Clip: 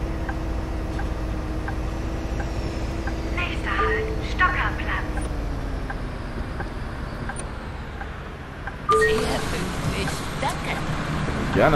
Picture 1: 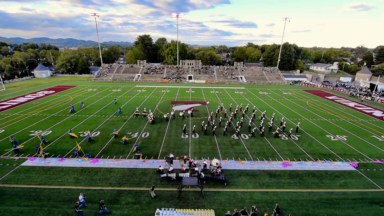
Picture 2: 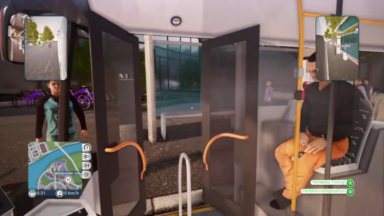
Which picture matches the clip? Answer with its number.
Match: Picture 2